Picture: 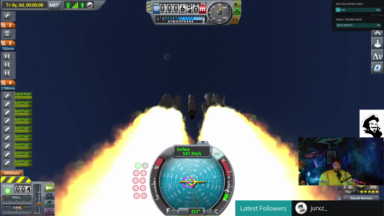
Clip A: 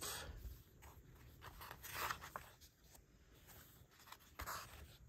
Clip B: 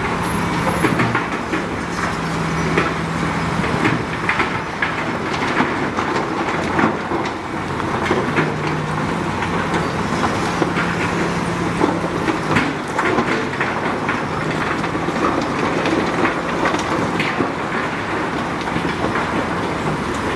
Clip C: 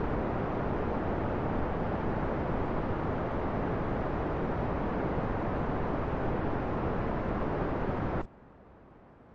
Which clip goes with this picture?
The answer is C